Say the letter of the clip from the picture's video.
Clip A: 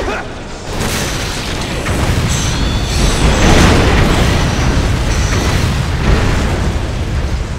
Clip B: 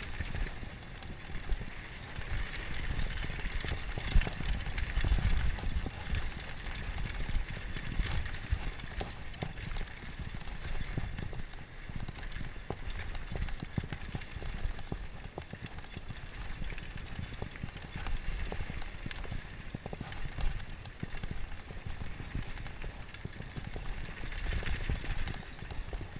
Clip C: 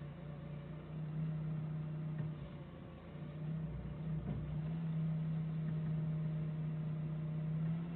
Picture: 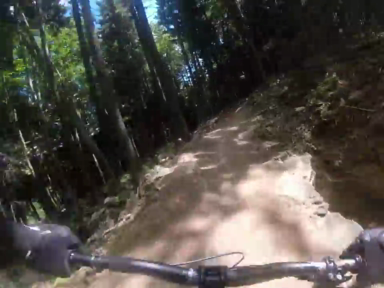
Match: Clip B